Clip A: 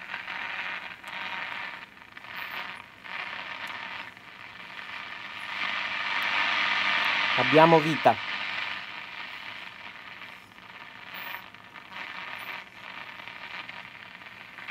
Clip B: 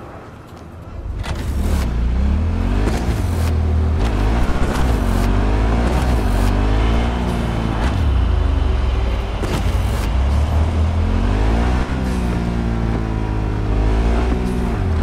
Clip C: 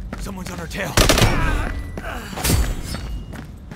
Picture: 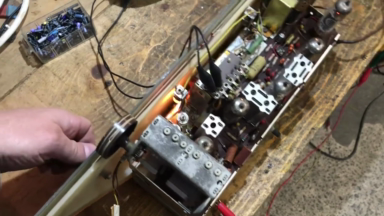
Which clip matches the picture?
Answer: A